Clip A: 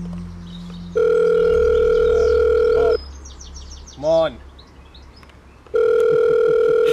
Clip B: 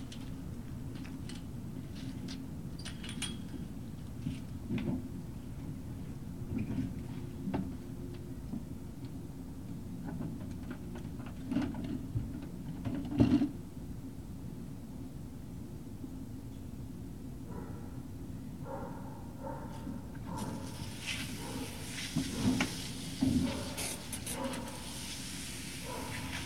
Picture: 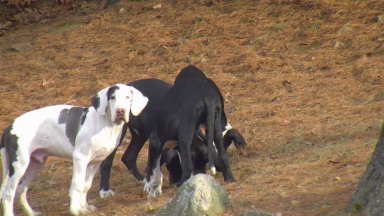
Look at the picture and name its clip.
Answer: B